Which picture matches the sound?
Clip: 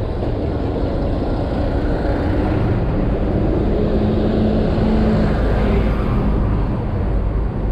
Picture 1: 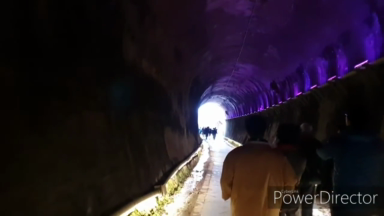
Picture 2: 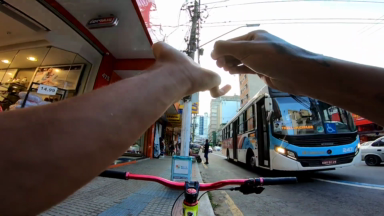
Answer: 2